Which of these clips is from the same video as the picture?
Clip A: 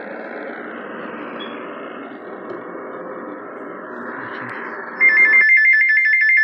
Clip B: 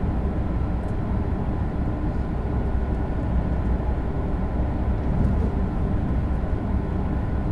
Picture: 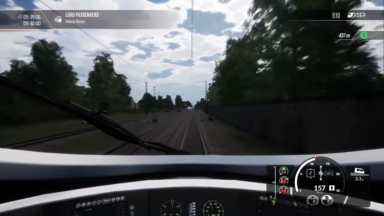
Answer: B